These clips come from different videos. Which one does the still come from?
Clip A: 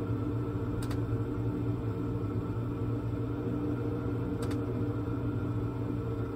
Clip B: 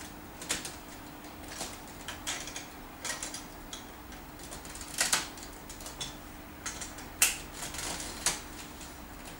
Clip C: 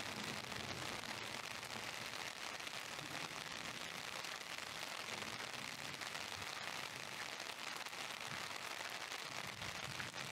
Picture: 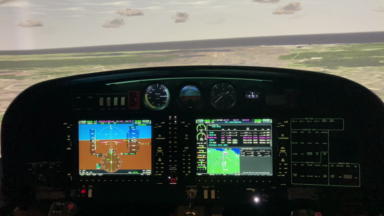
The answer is A